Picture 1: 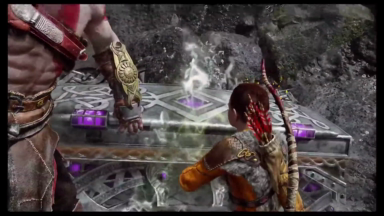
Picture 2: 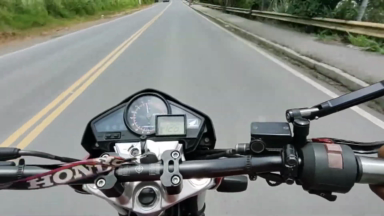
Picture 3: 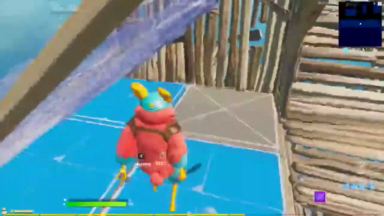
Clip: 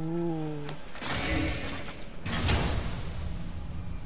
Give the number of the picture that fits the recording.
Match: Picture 1